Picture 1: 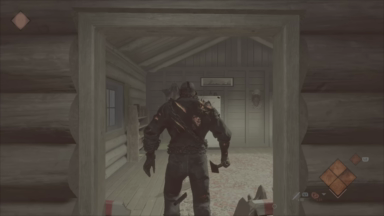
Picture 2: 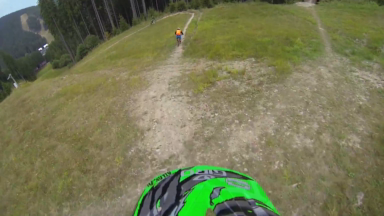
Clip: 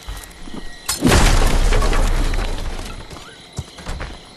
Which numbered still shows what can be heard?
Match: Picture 1